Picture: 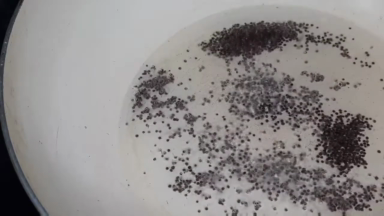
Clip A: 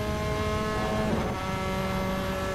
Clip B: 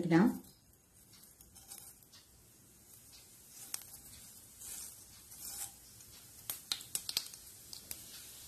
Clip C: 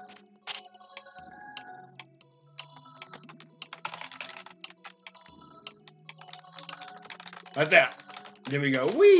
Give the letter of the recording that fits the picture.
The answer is B